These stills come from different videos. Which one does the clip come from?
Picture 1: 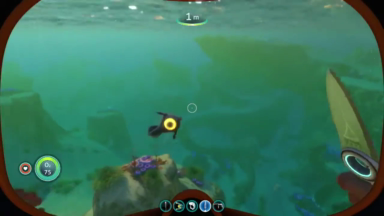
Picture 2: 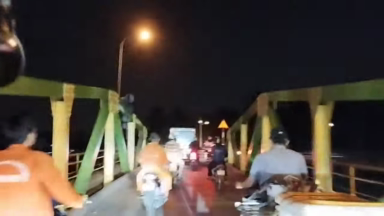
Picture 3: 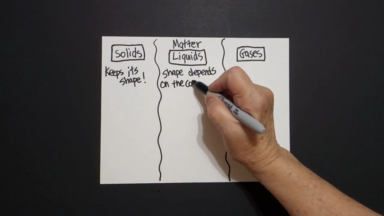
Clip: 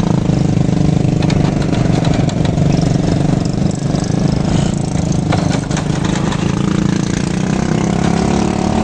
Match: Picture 2